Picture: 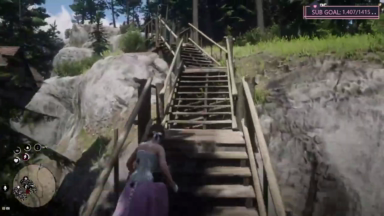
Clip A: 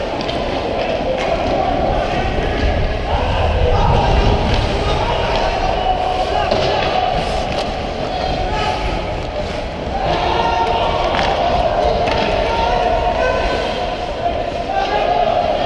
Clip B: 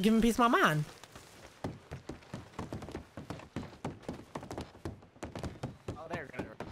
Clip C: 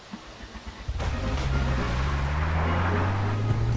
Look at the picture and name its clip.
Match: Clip B